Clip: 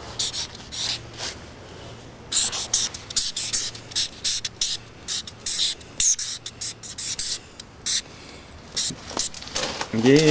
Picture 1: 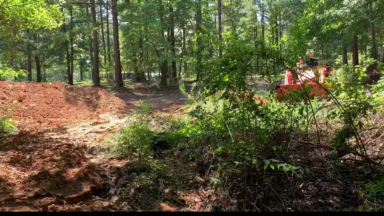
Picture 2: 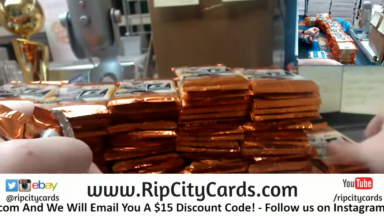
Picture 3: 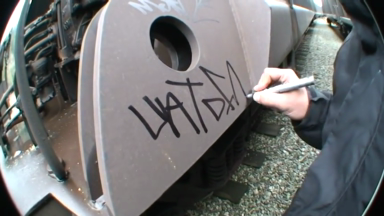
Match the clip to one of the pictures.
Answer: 3